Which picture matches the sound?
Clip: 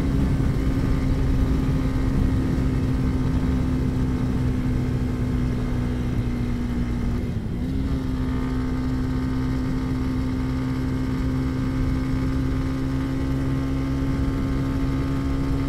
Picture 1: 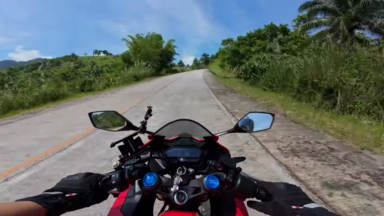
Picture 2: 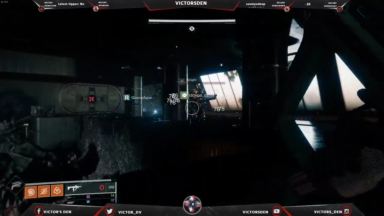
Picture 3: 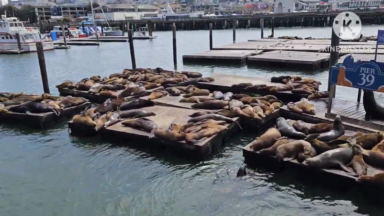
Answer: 1